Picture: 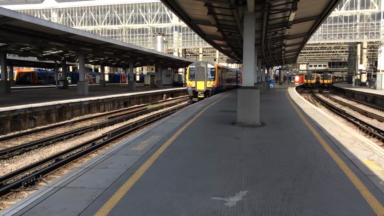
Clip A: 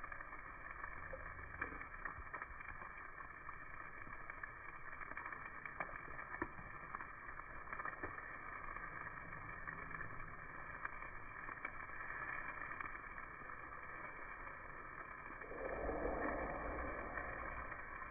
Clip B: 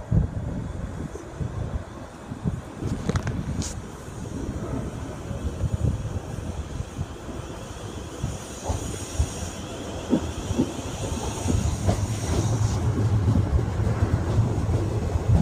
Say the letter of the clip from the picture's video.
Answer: B